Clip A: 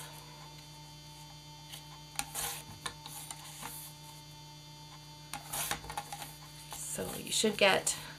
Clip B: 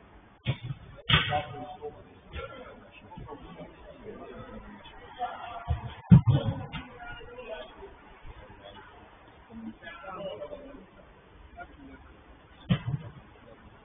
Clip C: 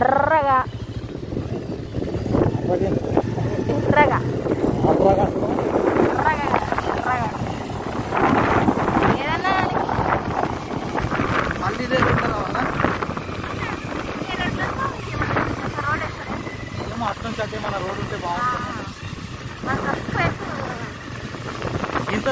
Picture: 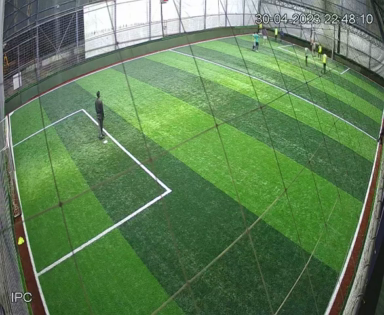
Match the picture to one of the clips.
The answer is B